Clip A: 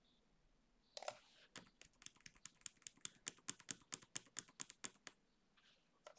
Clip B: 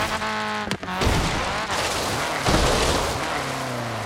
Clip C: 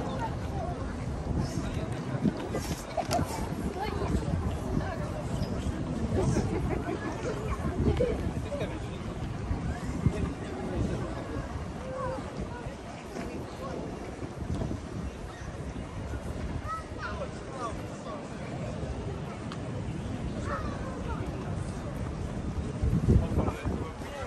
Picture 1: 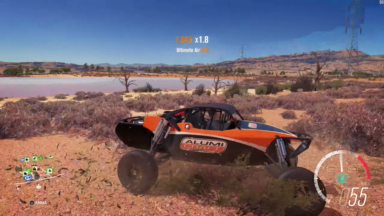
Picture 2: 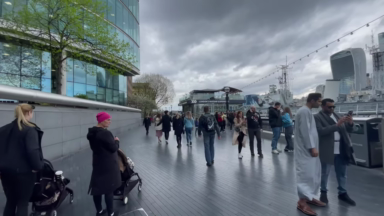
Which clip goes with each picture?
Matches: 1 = B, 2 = C